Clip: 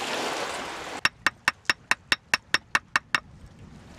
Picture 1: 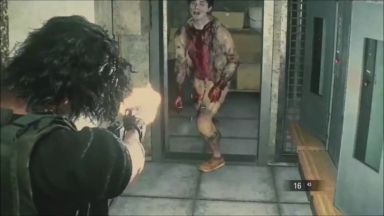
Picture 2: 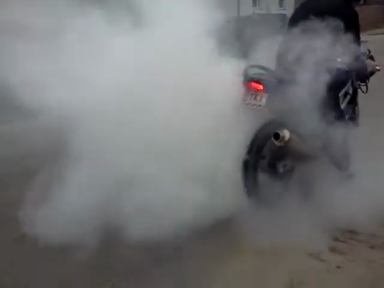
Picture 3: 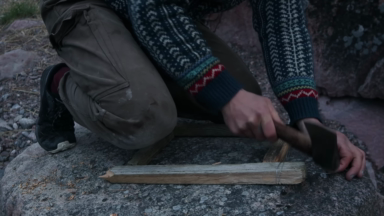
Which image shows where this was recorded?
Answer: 3